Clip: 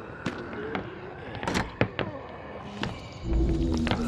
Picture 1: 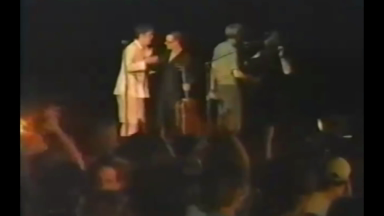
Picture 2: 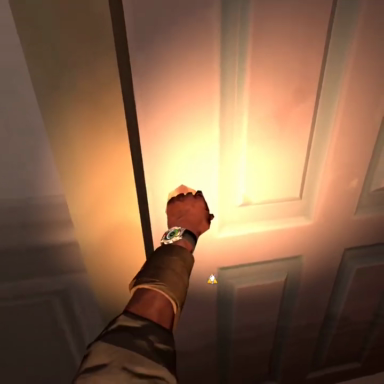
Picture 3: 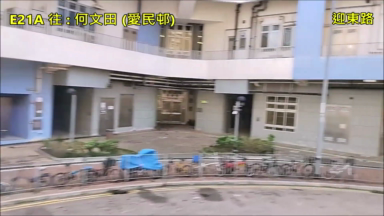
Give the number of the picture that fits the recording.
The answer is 2